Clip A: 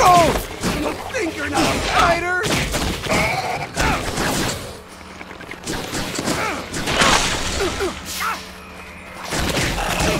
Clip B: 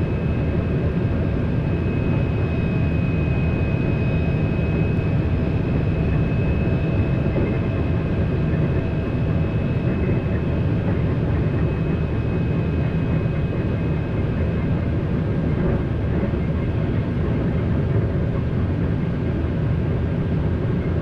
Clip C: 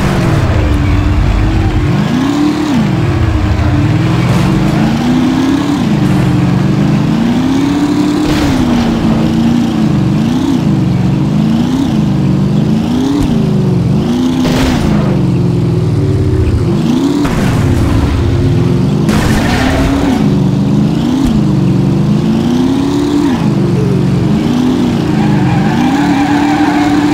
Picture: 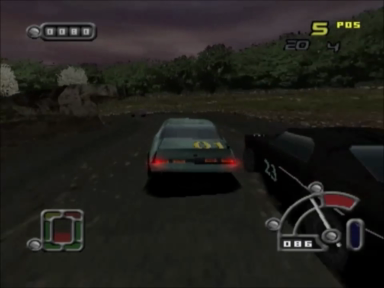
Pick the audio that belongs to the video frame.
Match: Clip C